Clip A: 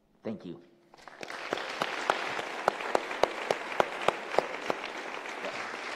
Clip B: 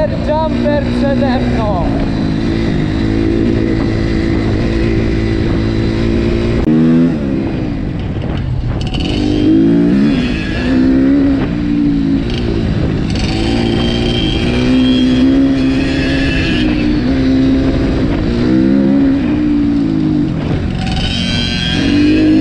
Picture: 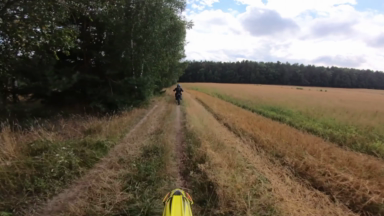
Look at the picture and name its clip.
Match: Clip B